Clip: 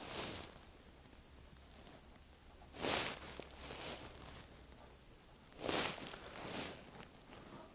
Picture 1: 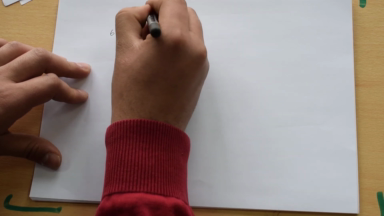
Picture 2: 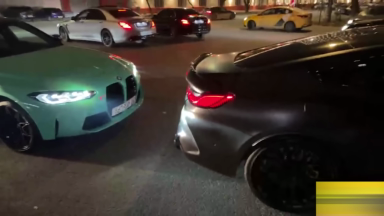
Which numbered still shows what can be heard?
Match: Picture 1